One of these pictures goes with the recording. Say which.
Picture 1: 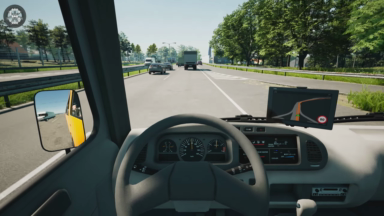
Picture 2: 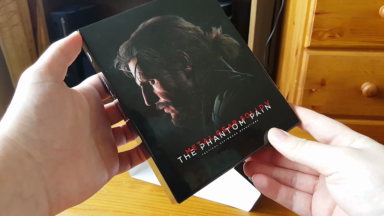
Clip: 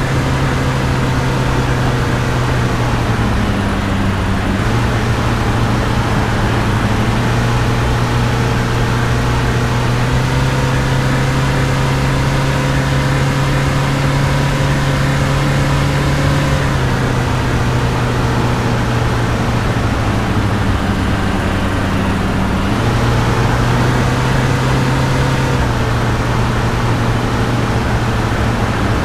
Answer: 1